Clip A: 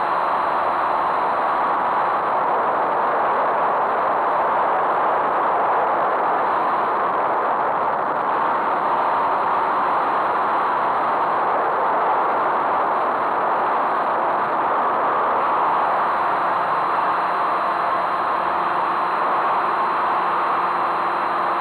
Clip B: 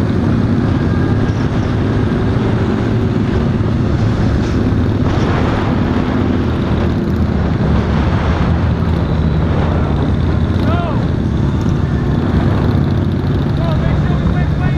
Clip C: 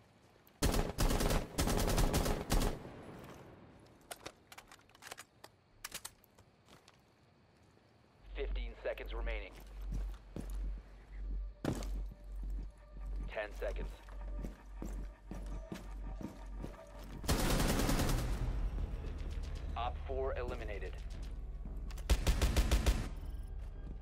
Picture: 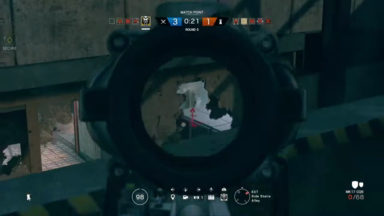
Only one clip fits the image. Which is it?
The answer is C